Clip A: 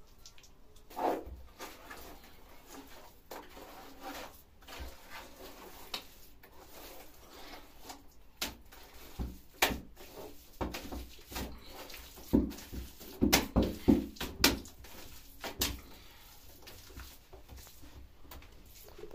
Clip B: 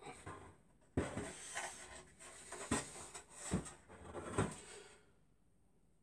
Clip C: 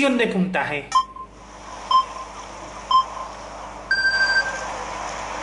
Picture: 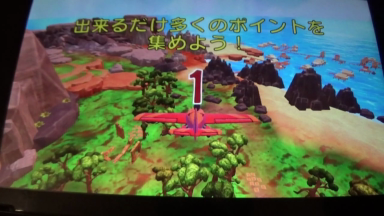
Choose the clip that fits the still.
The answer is C